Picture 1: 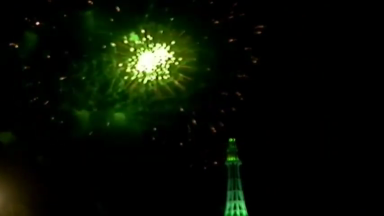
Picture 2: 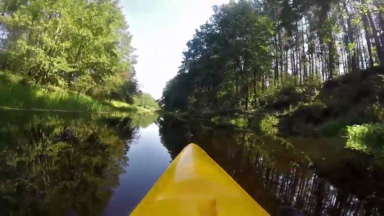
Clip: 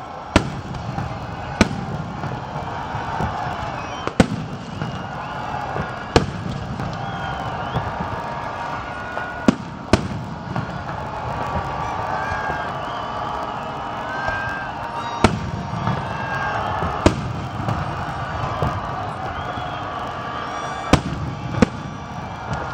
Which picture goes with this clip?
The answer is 1